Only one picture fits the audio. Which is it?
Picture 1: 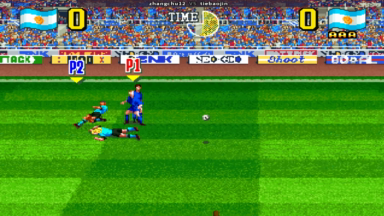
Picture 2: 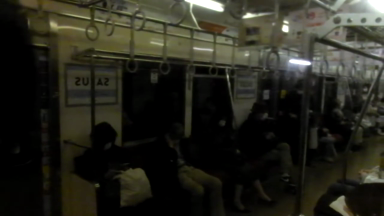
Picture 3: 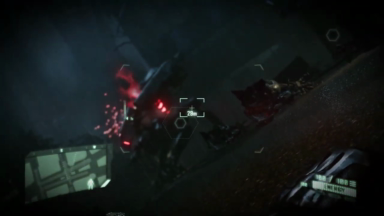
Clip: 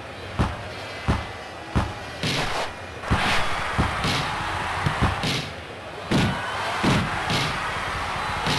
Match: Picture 1